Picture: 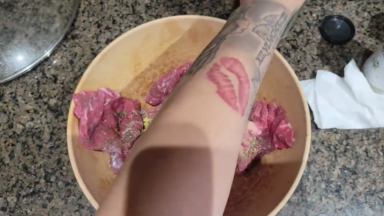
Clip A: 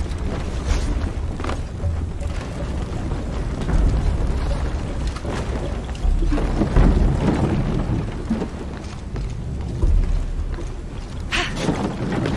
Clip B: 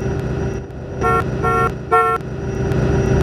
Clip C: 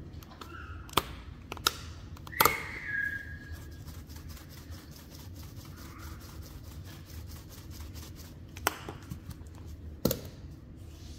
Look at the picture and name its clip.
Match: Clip C